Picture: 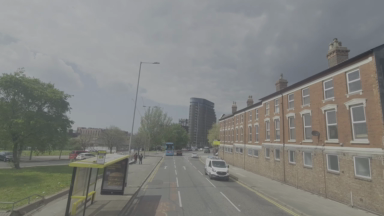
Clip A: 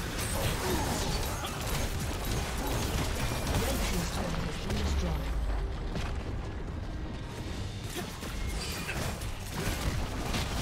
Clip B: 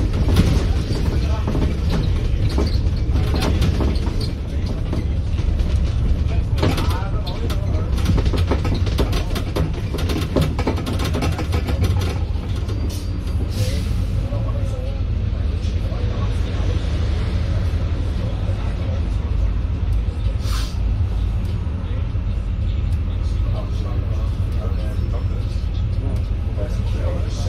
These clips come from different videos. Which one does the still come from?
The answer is B